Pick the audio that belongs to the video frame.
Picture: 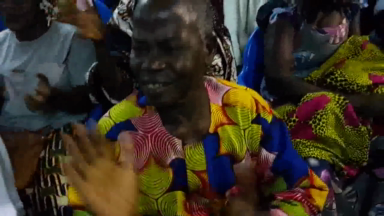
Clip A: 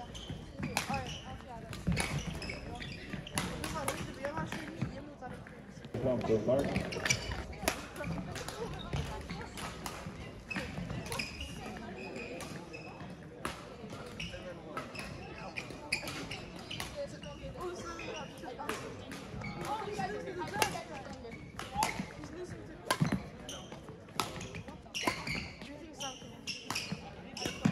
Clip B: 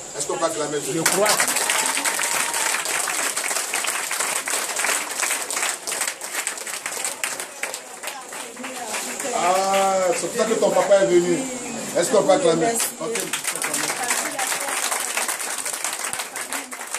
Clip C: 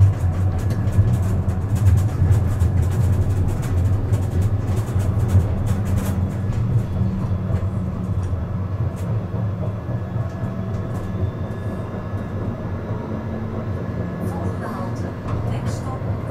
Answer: B